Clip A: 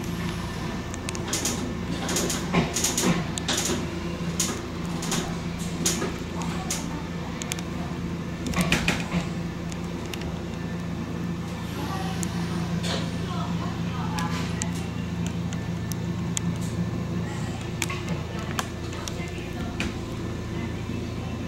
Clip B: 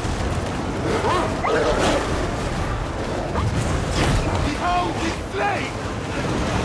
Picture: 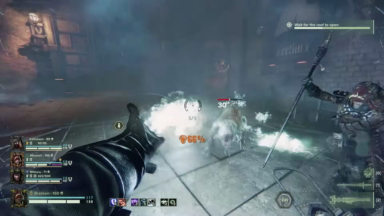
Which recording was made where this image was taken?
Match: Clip B